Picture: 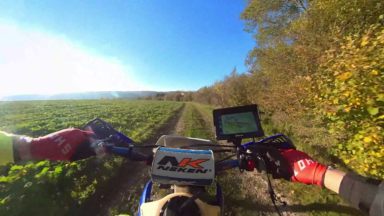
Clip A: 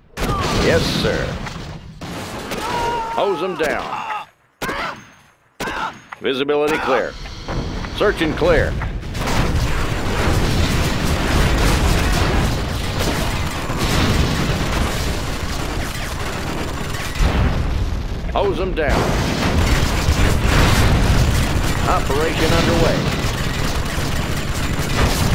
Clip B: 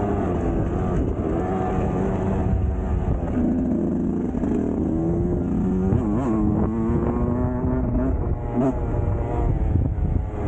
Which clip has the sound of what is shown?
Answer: B